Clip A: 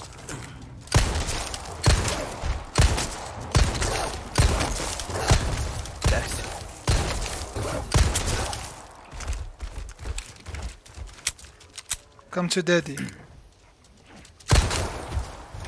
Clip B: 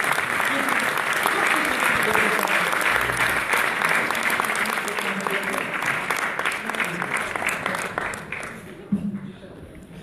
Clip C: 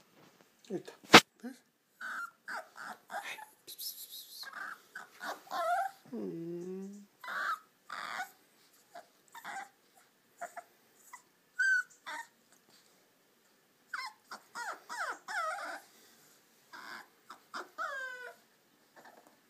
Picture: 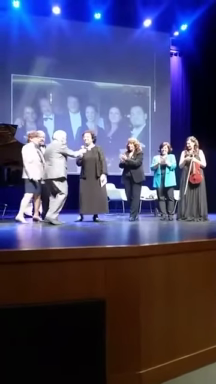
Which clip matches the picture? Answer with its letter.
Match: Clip B